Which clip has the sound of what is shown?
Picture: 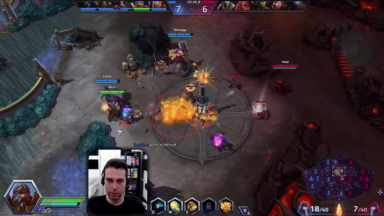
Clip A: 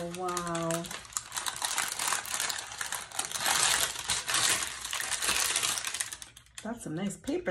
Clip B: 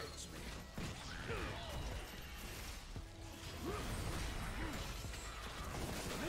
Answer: B